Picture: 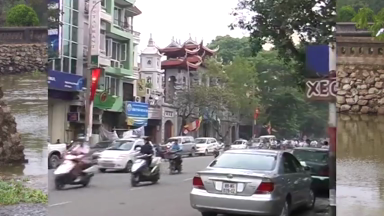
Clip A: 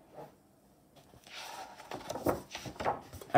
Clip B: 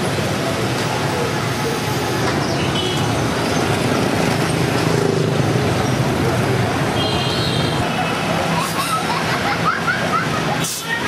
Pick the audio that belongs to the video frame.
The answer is B